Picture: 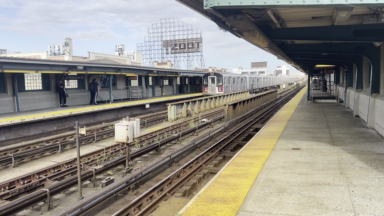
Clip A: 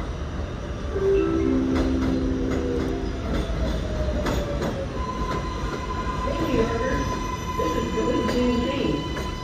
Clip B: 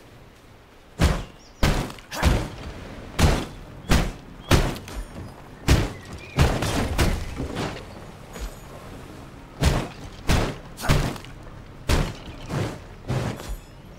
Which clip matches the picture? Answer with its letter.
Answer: A